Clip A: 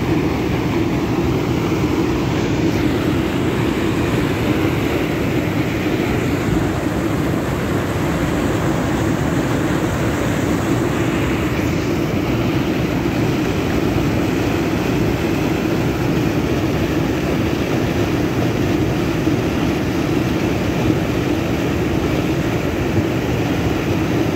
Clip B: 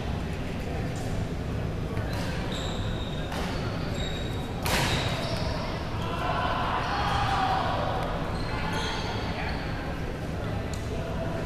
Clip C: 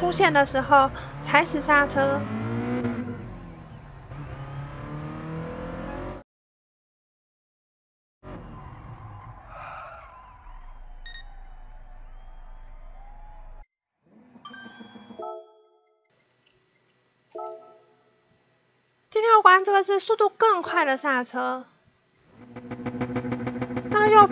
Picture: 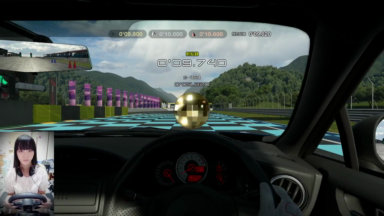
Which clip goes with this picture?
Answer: C